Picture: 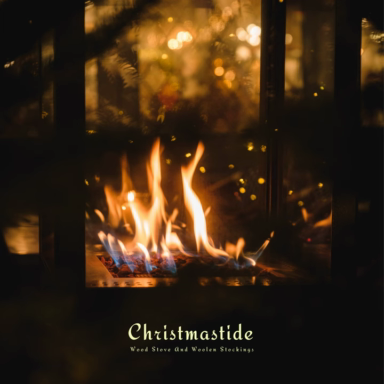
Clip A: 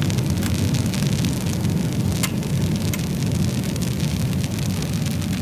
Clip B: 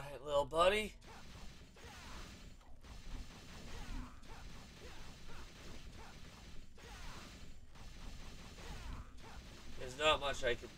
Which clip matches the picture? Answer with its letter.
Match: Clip A